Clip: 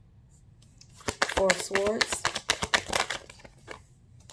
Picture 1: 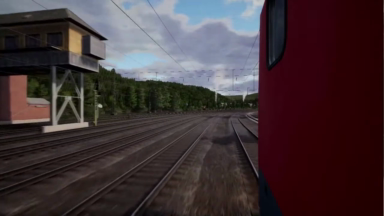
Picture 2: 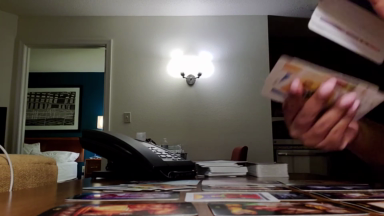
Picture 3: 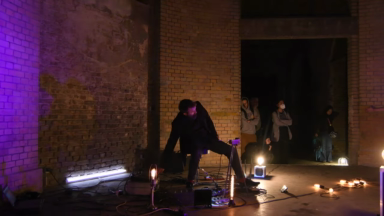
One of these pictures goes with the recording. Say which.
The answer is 2